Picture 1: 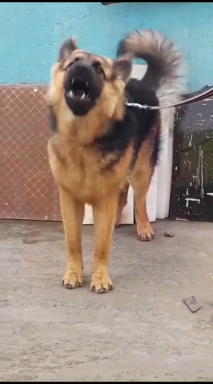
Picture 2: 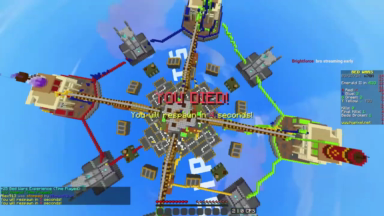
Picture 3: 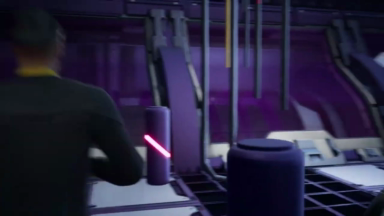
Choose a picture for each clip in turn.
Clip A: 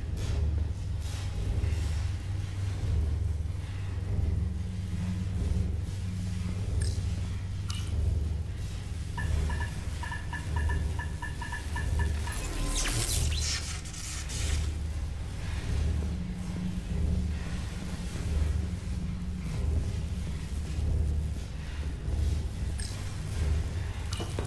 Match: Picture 3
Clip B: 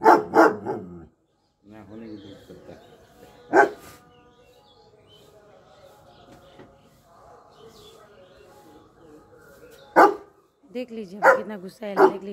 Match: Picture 1